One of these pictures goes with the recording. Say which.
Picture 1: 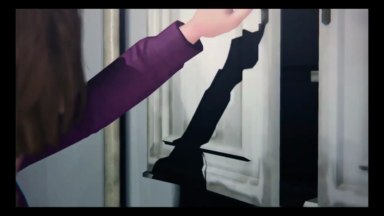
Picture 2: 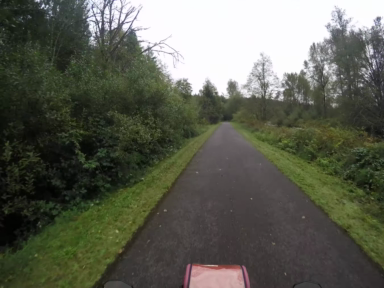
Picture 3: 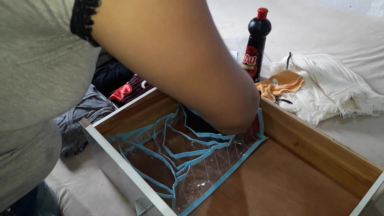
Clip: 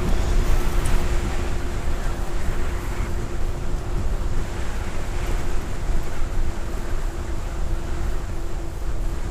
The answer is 2